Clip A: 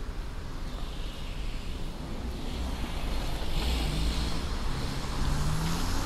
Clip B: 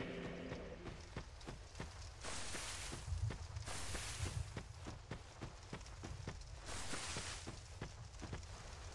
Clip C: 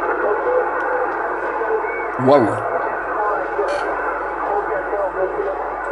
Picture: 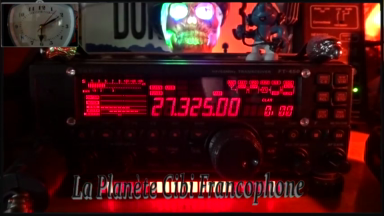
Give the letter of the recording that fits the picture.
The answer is C